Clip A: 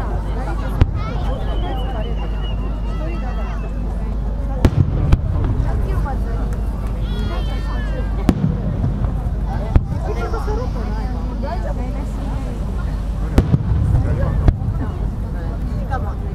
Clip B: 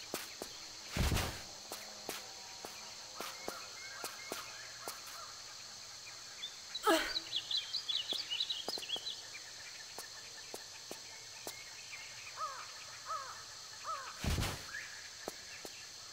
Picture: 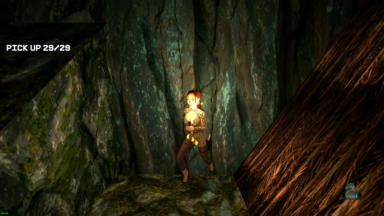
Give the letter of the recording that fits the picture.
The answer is B